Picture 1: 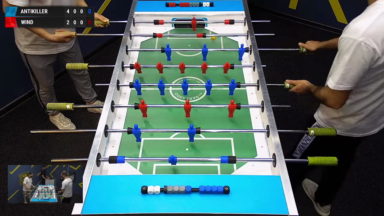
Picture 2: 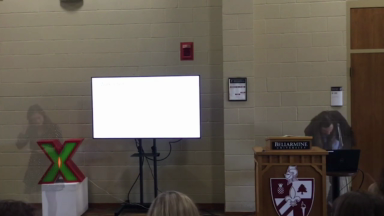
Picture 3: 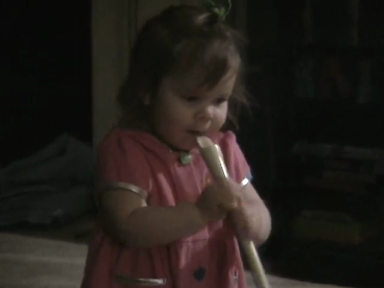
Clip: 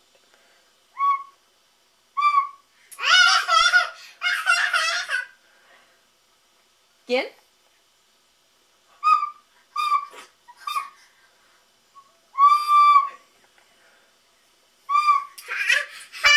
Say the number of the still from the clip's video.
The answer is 3